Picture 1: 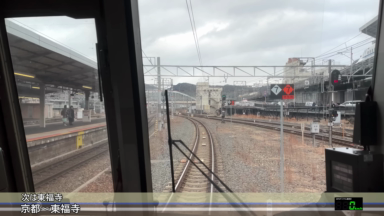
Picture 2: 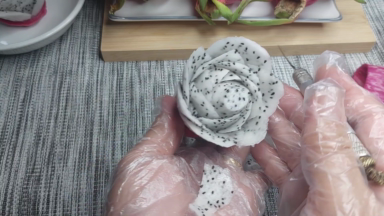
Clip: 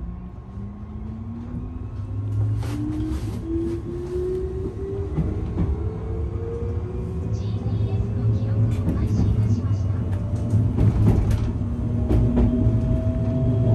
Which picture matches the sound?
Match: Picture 1